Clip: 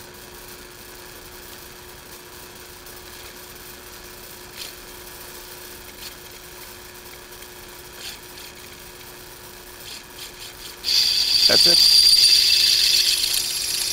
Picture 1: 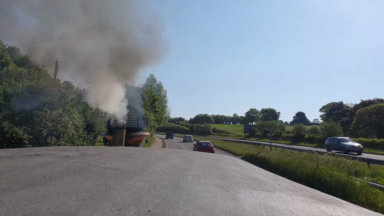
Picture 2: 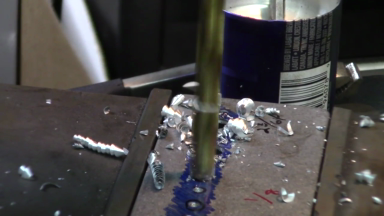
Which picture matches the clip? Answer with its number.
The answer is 2